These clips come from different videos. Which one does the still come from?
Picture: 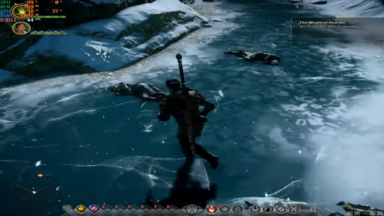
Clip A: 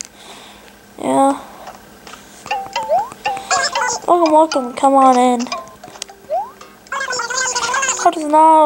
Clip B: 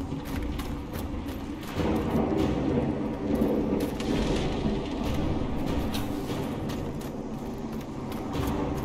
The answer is B